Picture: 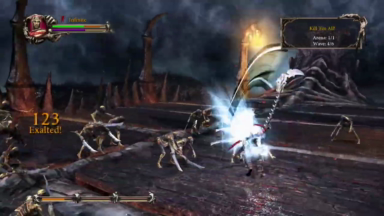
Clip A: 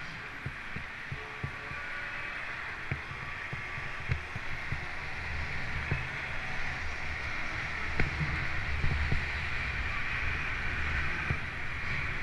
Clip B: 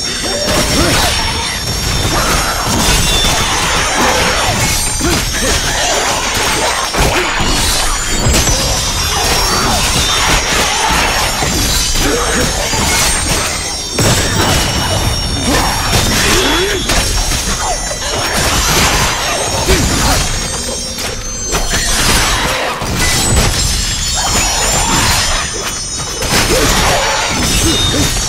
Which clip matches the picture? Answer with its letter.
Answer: B